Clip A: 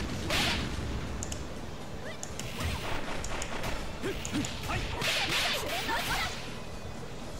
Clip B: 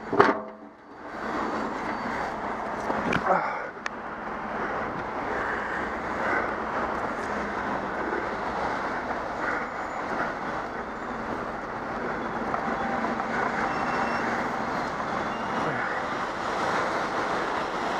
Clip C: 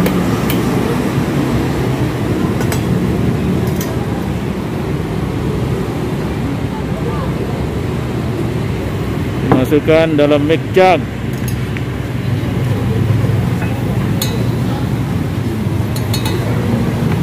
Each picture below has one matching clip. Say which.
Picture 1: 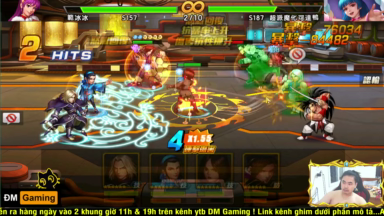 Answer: A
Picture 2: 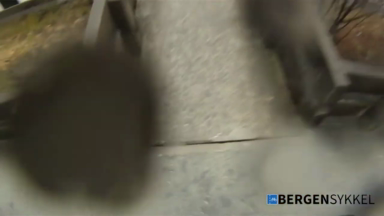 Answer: B